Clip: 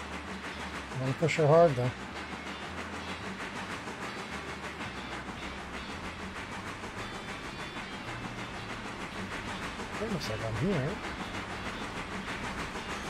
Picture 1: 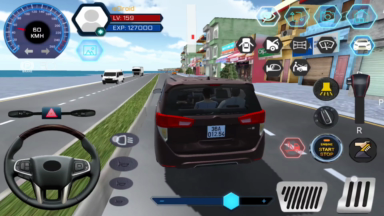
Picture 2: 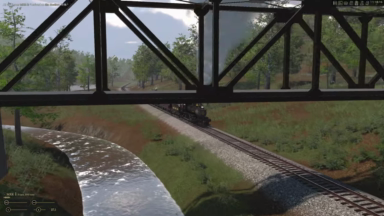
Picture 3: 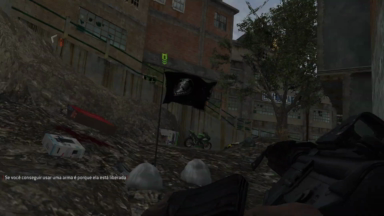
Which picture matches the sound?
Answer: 2